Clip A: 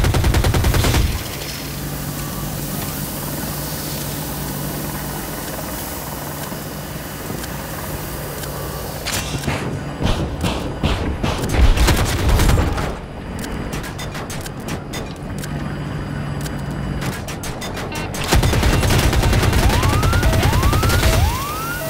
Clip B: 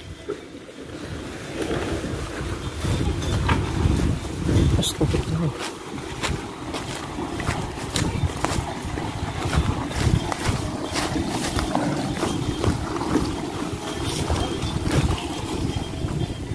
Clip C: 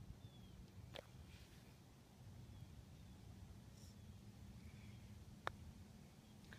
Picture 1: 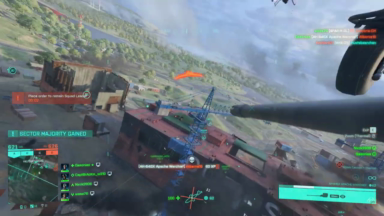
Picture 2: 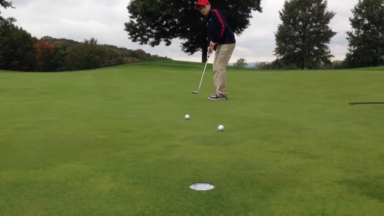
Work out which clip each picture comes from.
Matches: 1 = A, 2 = C